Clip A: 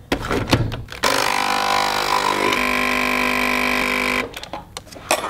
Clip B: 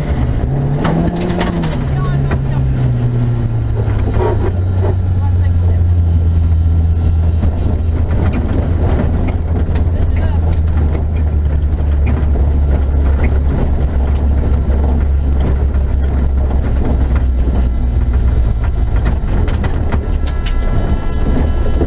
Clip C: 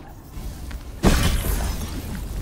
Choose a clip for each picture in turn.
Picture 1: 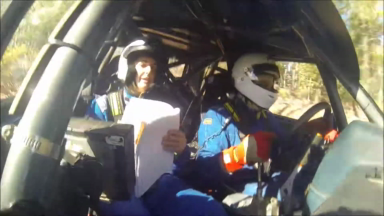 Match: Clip B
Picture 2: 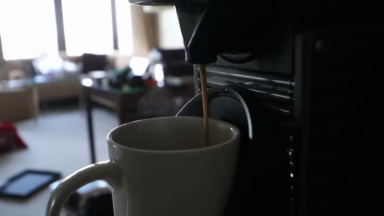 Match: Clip A